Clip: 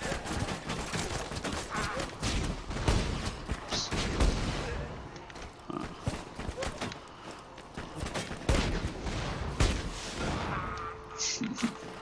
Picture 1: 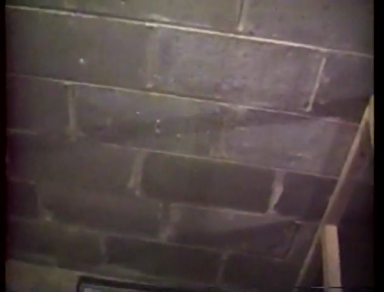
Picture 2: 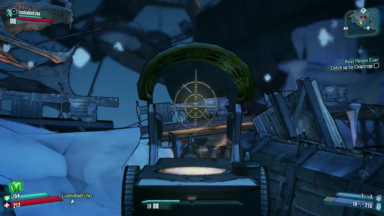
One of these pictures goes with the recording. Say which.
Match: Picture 2